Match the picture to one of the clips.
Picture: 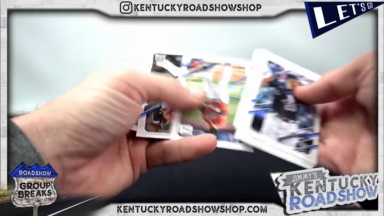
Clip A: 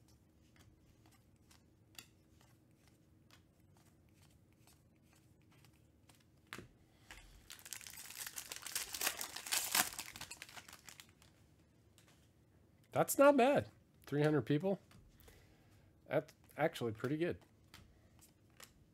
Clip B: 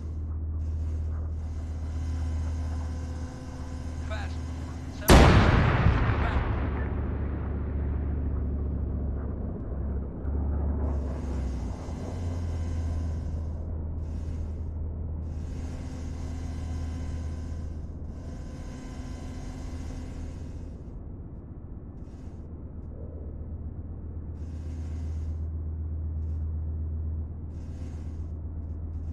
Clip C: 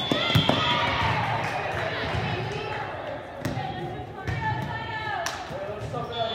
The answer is A